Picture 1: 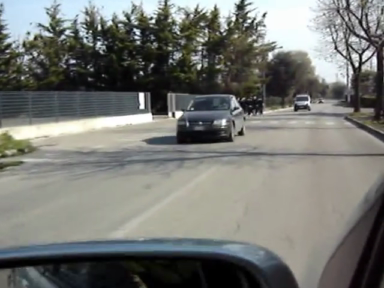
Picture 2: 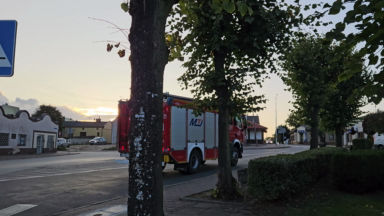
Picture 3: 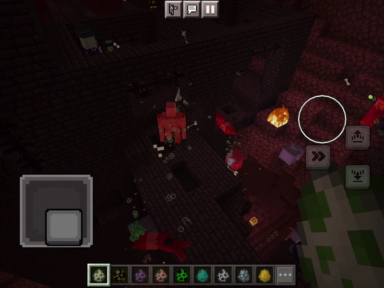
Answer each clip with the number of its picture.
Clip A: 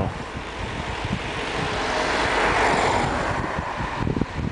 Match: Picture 1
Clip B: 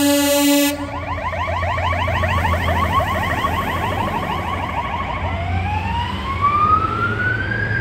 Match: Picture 2